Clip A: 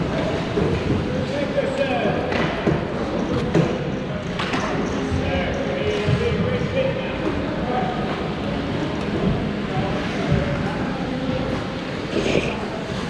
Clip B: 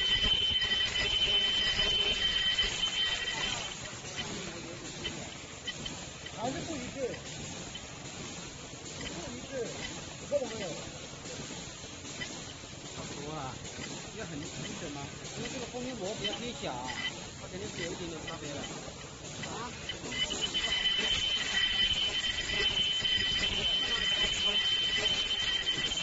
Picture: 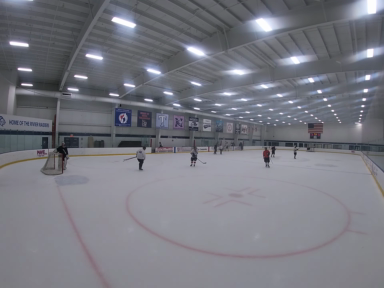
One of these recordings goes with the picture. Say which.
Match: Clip A